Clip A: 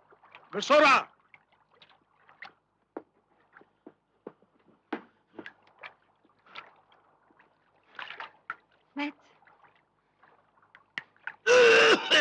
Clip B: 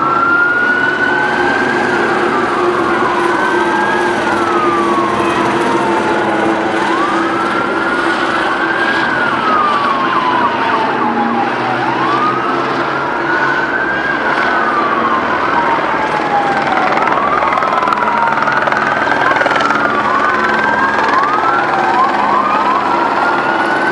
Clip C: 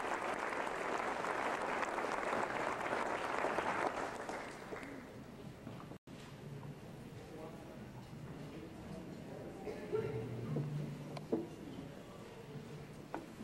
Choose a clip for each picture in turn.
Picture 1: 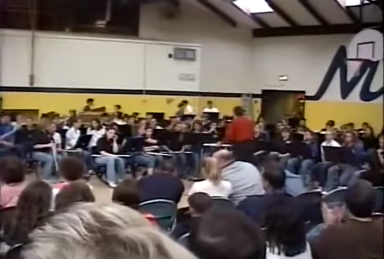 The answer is C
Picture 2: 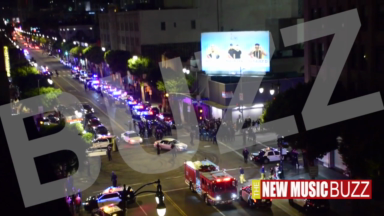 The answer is B